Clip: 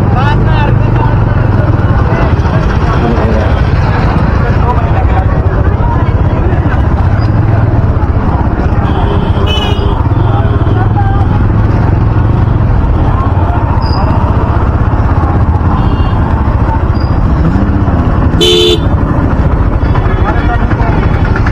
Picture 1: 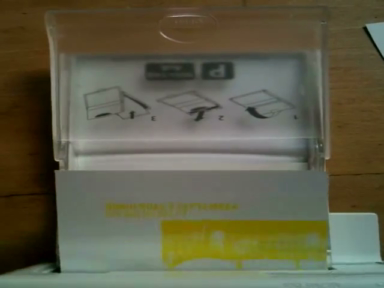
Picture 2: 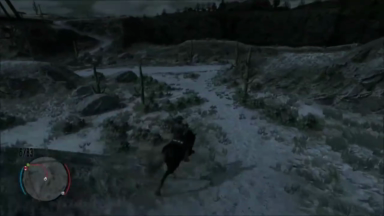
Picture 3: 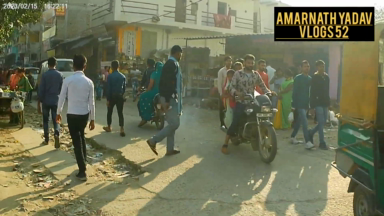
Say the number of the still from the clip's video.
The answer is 3